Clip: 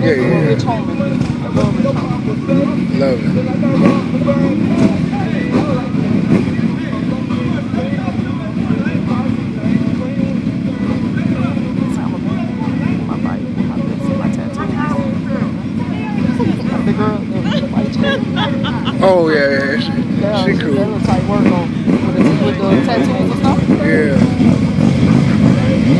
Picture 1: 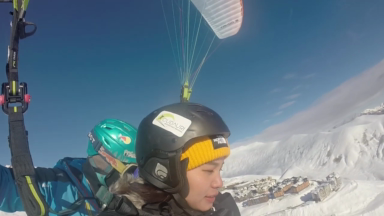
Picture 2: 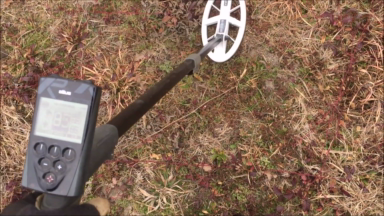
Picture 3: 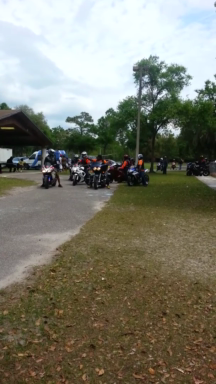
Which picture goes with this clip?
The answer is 3